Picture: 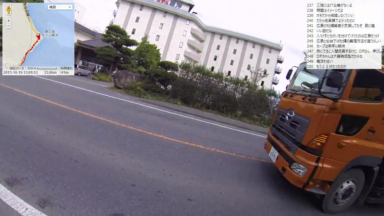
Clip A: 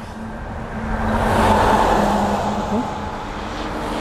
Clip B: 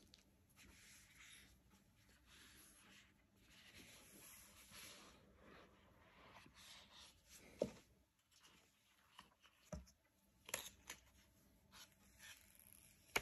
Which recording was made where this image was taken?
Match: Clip A